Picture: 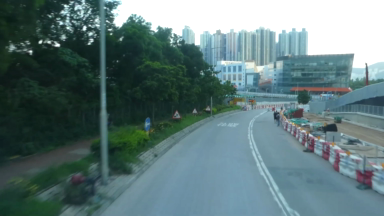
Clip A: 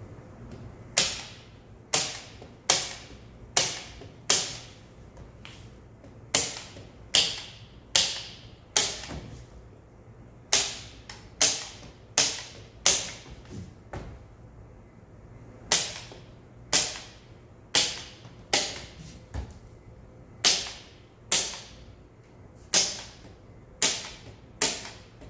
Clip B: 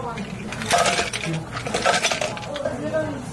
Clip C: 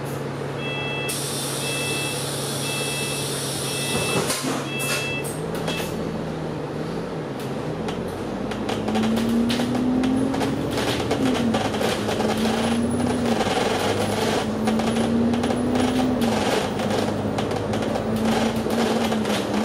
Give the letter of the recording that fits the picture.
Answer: C